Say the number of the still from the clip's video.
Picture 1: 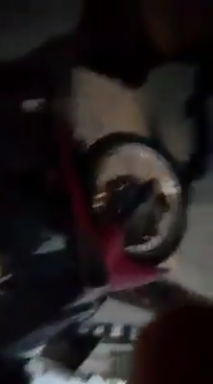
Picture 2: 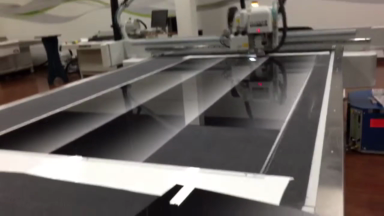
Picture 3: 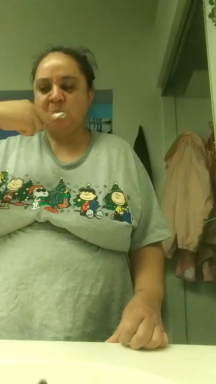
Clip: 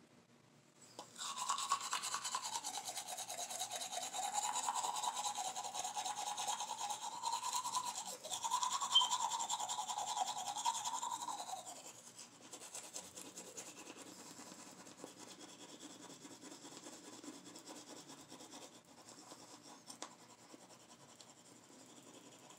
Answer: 3